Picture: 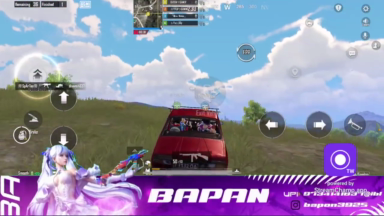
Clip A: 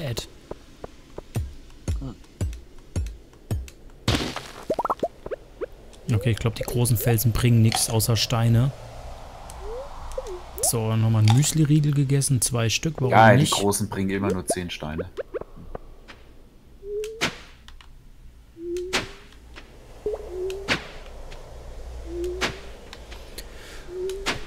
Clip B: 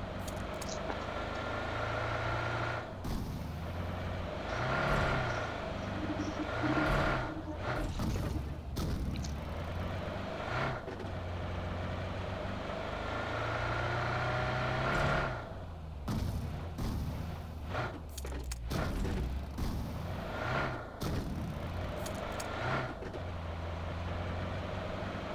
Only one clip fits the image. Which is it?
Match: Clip B